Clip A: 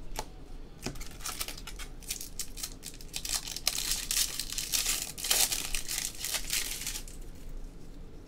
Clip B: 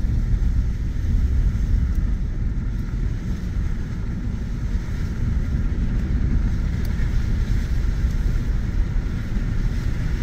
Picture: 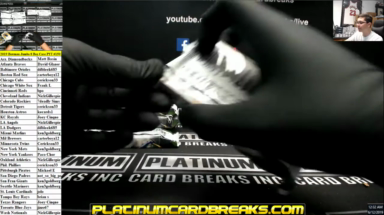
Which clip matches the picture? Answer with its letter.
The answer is A